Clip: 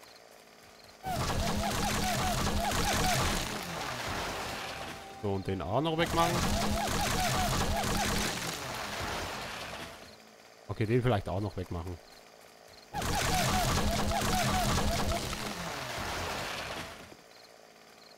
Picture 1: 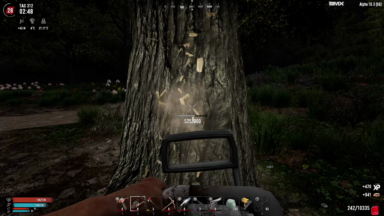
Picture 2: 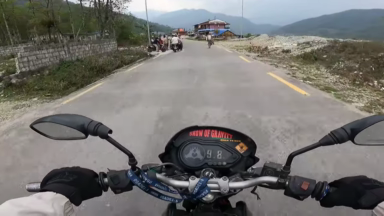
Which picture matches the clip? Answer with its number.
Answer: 1